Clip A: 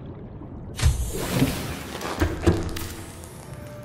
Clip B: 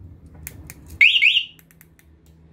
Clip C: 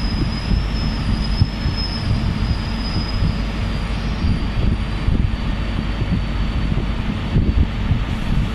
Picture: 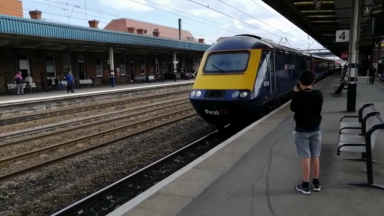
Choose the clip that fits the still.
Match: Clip C